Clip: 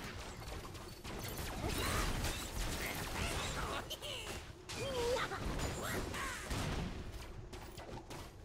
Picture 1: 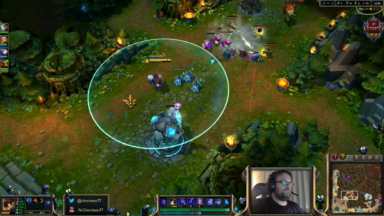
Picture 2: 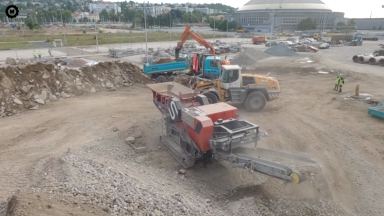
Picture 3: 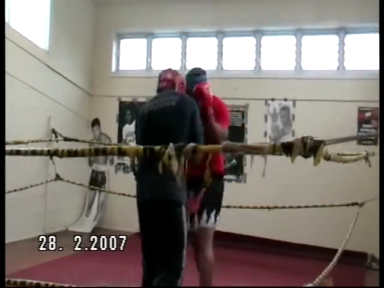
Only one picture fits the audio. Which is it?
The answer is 1